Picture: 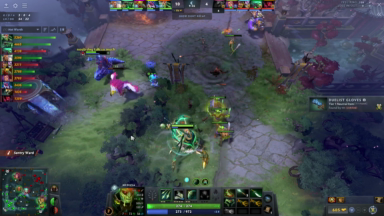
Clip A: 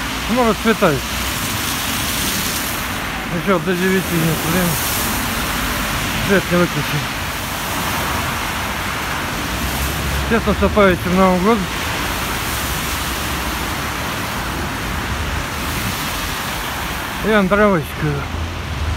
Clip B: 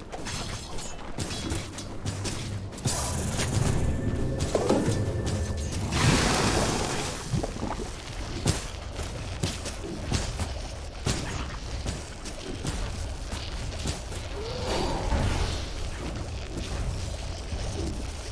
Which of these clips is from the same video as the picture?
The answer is B